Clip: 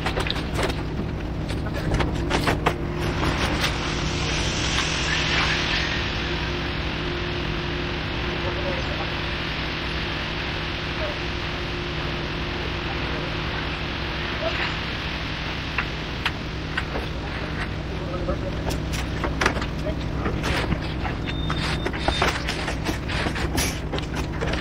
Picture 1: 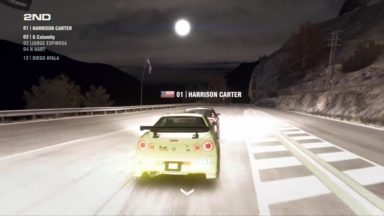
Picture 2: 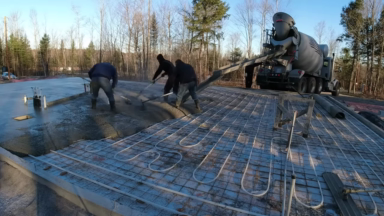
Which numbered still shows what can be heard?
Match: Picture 2